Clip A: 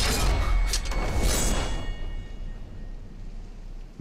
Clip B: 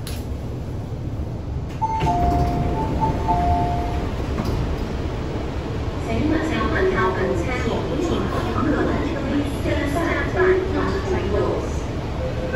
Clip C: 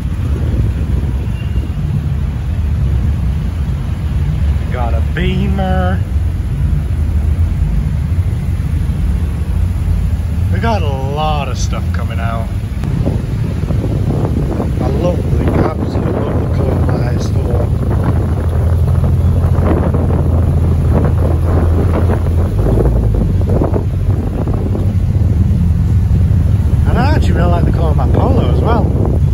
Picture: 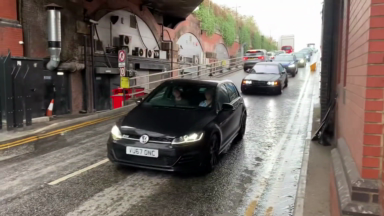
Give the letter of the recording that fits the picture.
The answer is C